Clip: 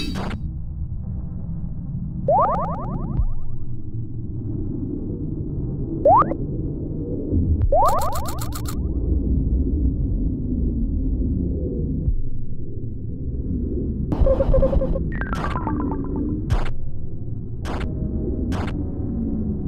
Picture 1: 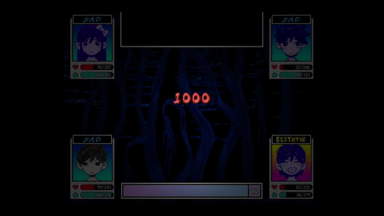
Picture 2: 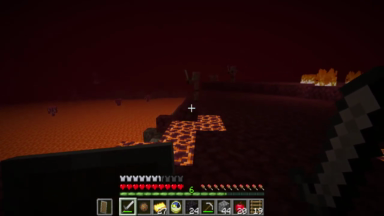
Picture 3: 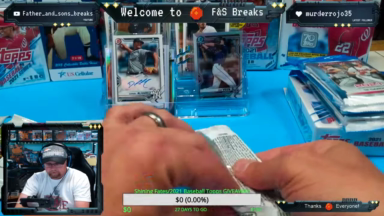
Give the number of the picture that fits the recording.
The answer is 1